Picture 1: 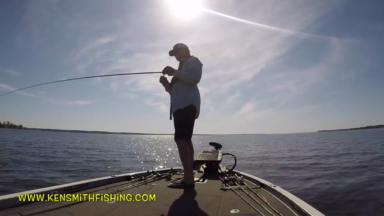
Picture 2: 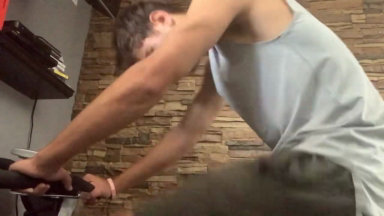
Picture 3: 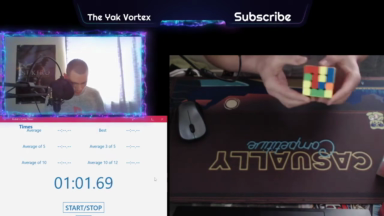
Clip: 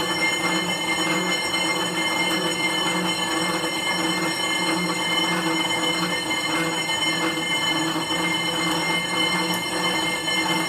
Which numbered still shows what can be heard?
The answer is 2